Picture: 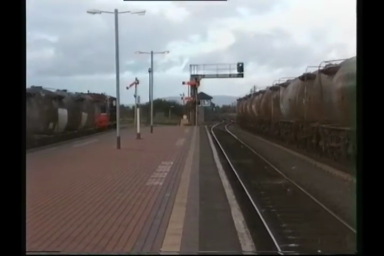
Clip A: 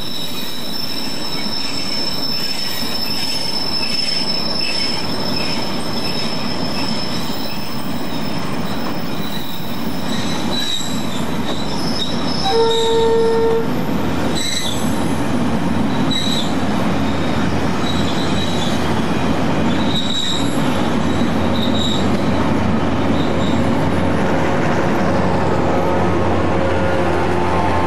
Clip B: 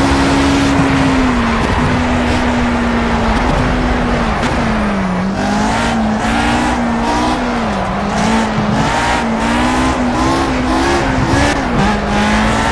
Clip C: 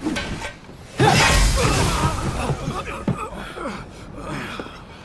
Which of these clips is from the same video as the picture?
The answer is A